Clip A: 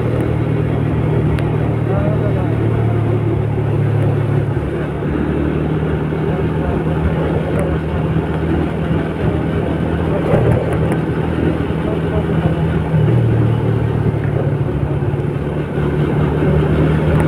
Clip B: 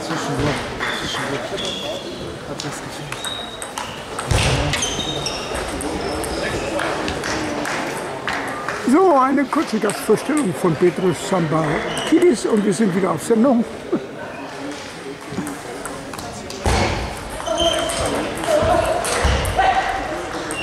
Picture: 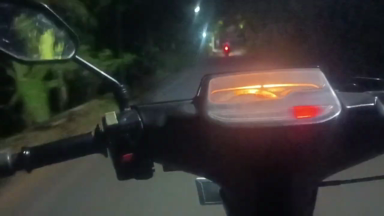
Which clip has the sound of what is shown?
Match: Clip A